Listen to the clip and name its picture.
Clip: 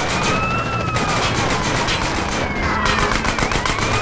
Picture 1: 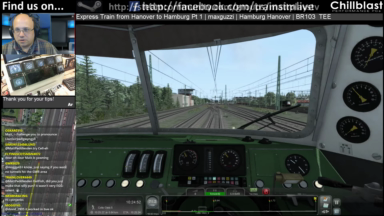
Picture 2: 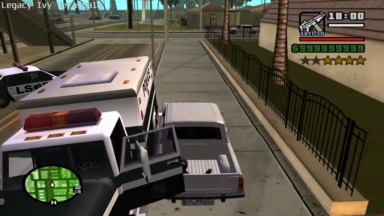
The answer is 2